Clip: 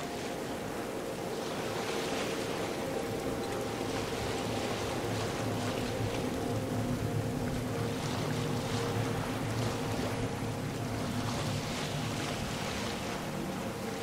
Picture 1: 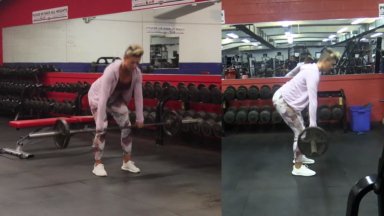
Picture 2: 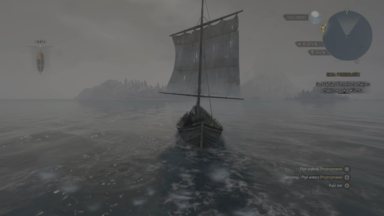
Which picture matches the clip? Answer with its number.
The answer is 2